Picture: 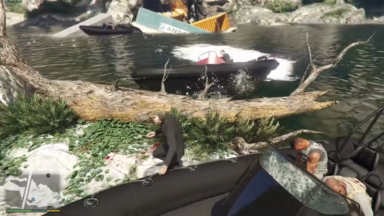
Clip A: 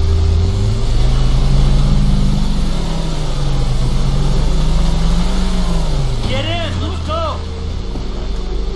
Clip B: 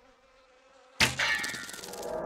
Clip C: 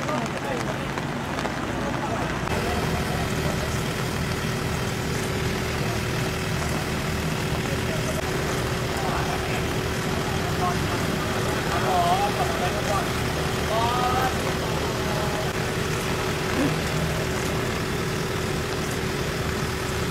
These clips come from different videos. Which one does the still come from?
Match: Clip A